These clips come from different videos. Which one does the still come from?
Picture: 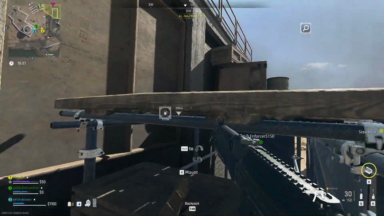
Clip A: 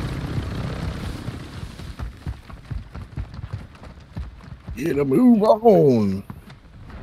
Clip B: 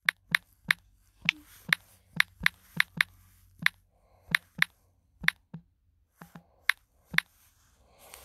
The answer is A